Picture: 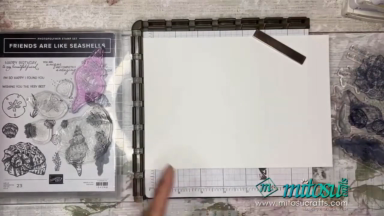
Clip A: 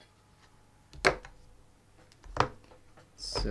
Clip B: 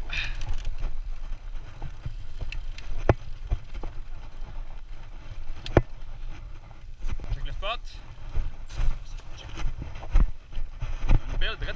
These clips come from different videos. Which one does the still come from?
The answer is A